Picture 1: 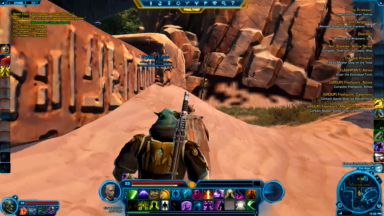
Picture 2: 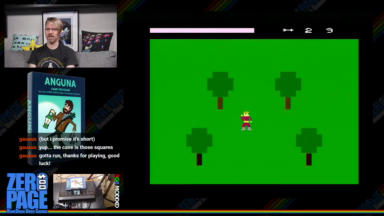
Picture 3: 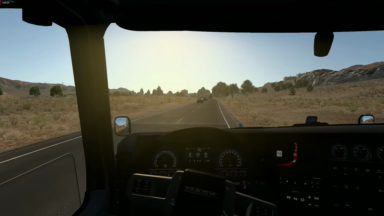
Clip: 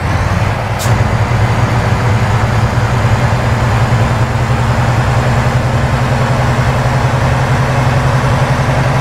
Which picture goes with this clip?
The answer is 3